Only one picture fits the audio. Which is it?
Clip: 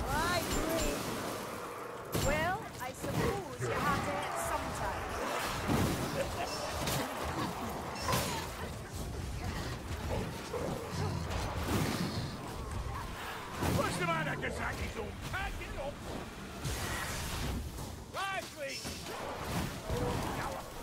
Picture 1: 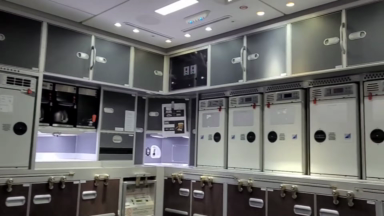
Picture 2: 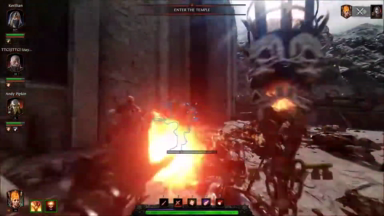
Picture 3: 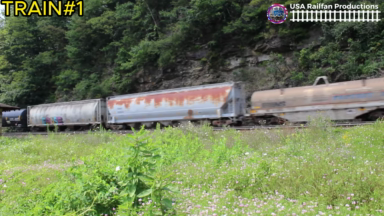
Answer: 2